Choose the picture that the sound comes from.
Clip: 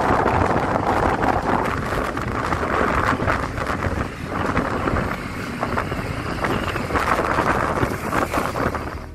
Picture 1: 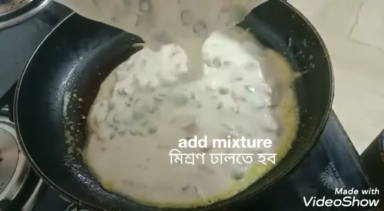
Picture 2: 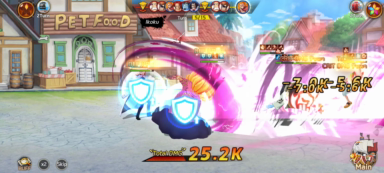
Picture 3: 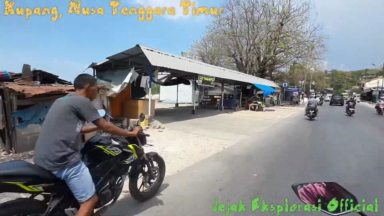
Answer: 3